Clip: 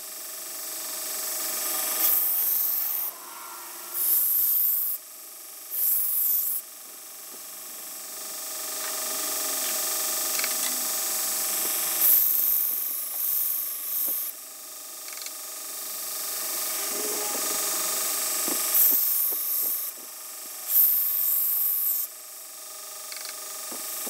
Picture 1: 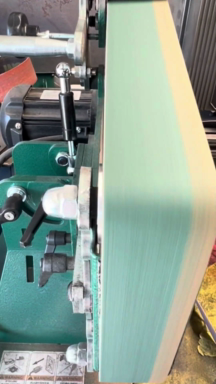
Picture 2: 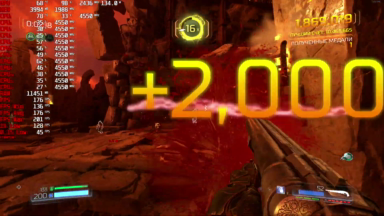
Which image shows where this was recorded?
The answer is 1